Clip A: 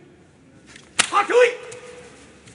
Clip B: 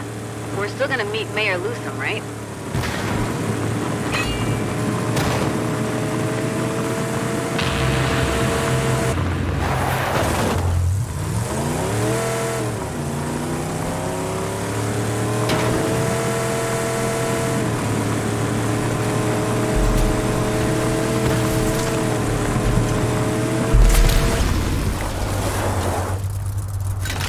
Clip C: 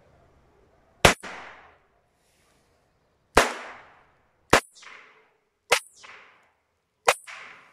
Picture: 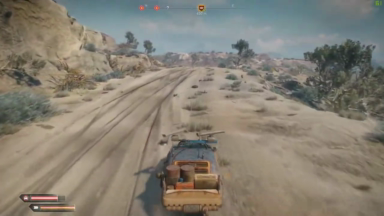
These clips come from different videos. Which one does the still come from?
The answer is B